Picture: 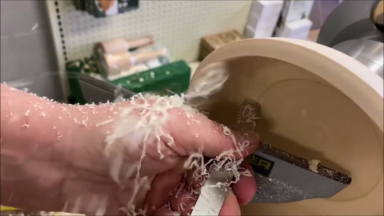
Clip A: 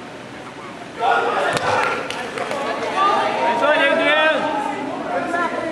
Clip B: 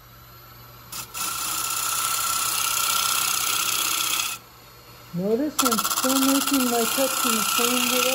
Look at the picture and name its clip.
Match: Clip B